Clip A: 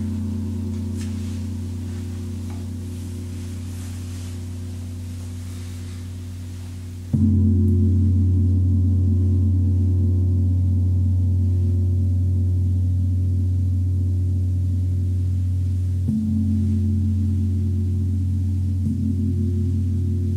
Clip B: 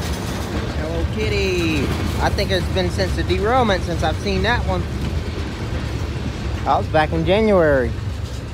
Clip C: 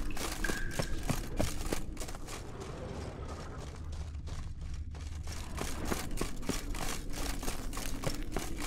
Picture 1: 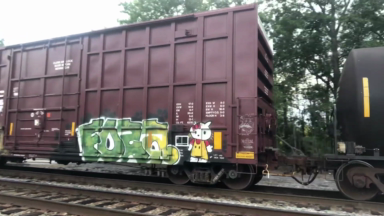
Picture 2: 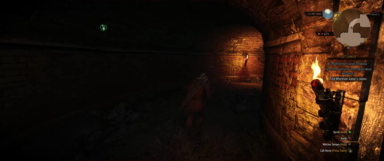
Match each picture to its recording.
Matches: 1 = B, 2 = C